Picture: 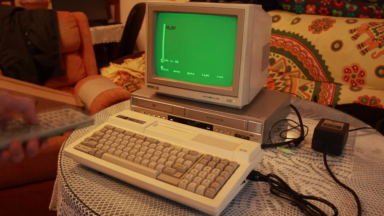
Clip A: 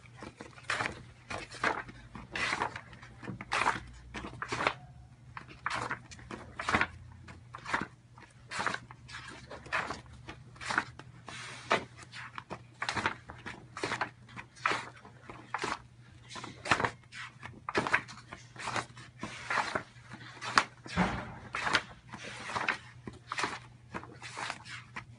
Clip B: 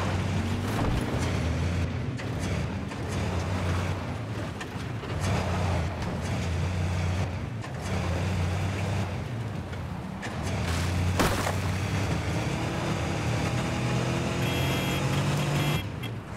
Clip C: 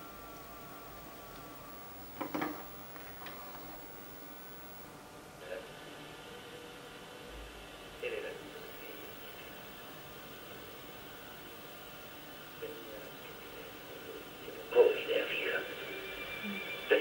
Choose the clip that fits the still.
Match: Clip C